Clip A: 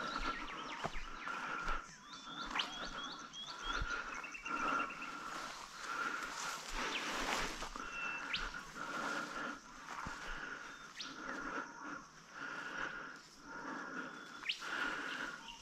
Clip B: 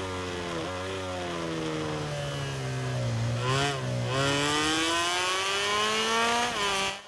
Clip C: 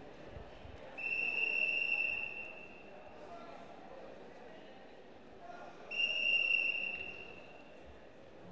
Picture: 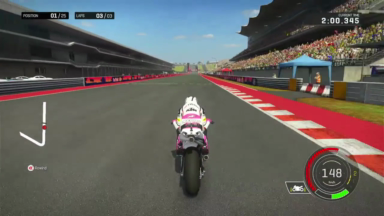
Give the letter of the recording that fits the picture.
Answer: B